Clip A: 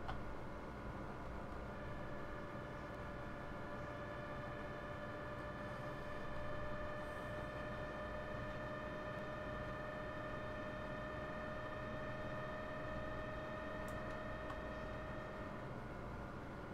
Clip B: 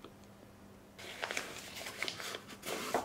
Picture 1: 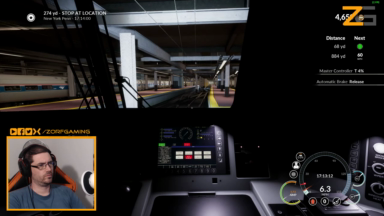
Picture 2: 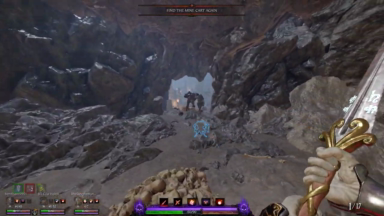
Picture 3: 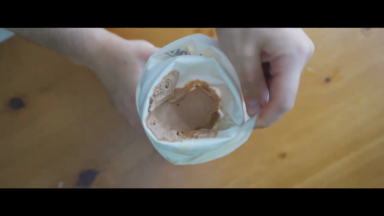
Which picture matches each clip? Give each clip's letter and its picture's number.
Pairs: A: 1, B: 3